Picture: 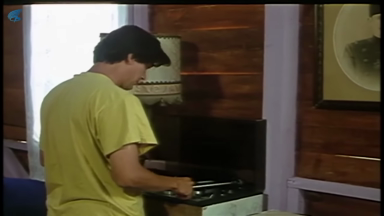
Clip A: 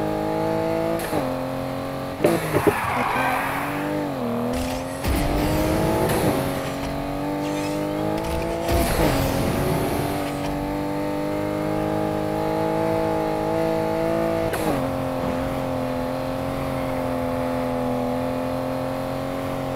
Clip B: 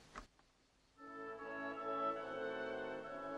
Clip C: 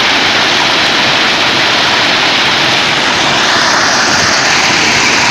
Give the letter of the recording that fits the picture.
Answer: B